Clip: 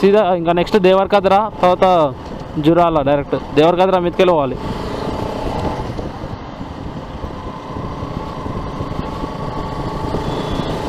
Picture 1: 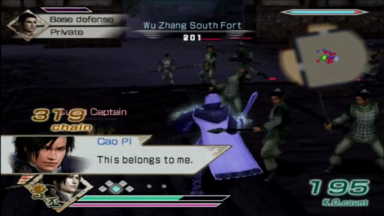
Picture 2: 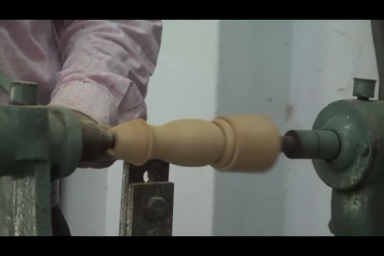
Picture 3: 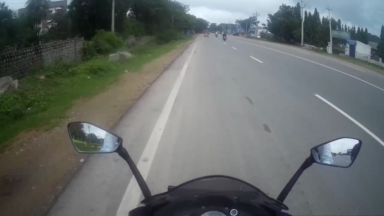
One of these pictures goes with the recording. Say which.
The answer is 3